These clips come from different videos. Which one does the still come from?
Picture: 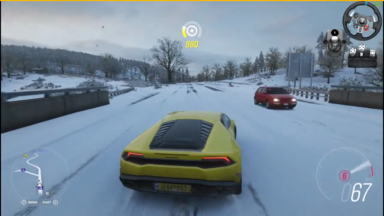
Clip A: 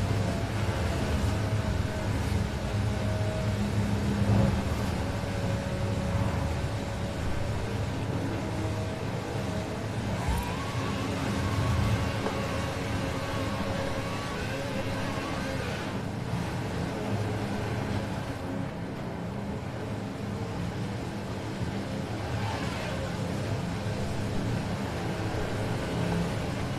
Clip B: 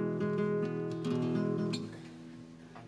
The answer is A